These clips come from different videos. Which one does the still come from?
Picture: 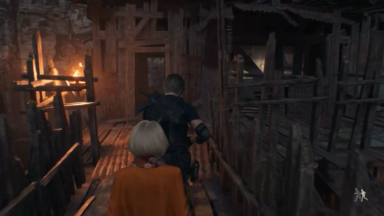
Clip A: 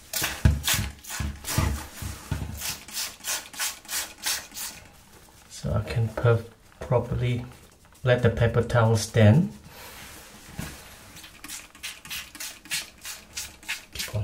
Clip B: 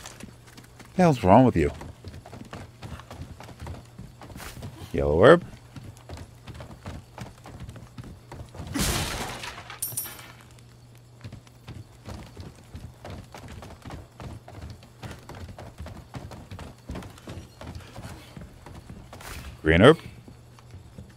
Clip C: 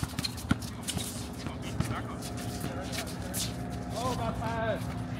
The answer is B